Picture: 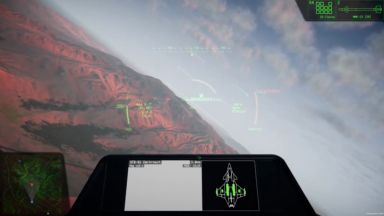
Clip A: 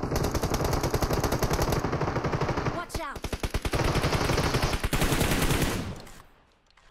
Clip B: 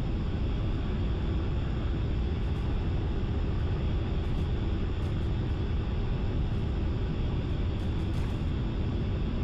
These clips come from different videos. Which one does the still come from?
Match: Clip B